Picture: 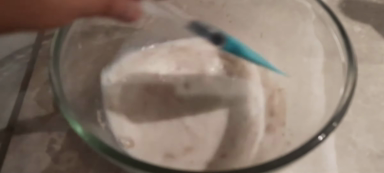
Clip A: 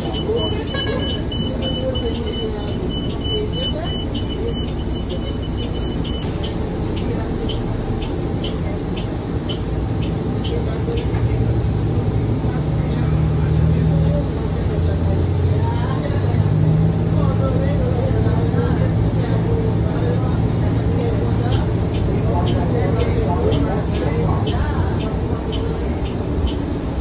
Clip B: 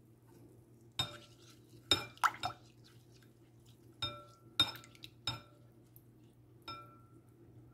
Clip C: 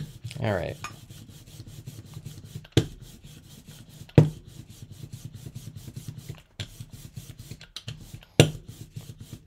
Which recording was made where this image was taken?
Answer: B